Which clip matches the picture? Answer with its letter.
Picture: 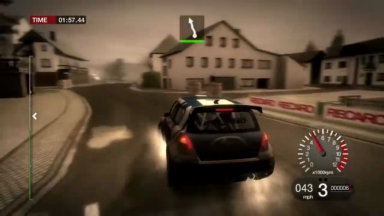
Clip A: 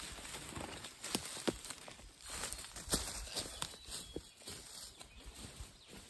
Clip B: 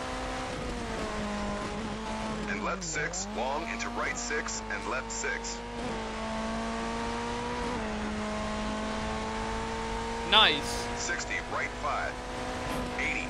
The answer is B